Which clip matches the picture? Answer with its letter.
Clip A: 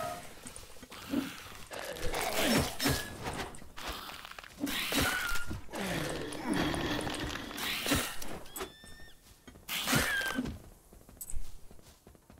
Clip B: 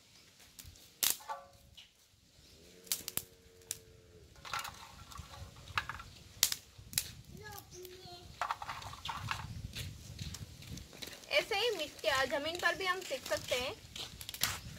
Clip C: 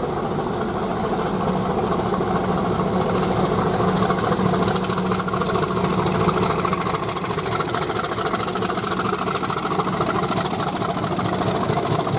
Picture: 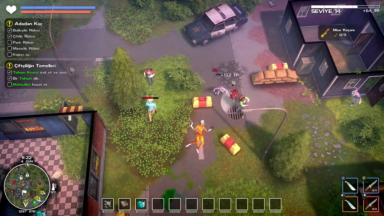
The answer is A